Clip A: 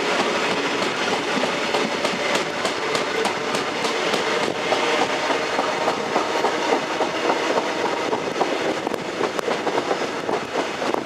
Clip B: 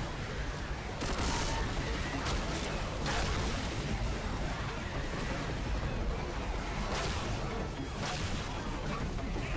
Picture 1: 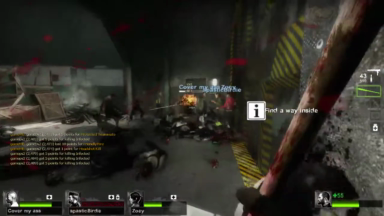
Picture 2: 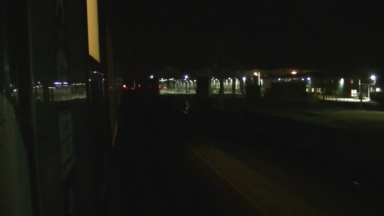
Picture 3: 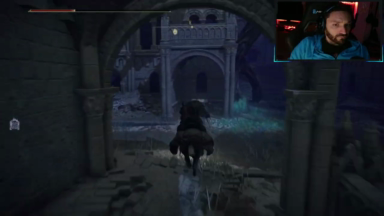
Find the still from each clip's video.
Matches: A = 2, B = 1